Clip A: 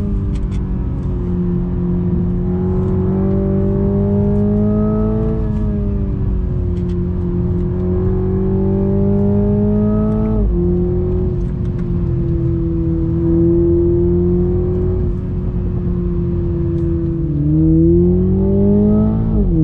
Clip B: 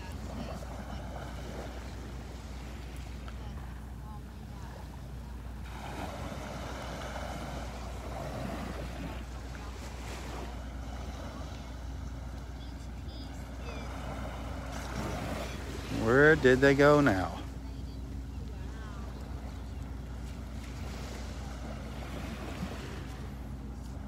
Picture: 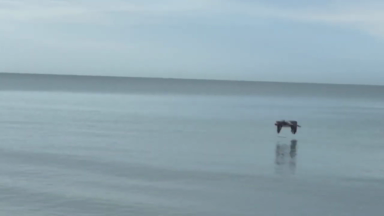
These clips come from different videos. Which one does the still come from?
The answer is B